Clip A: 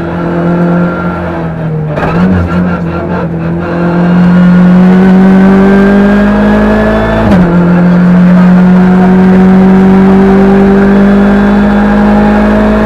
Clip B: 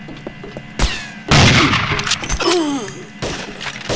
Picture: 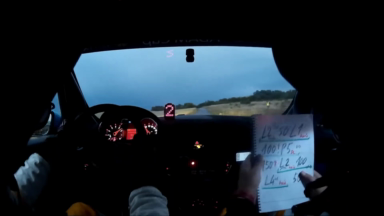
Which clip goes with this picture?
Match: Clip A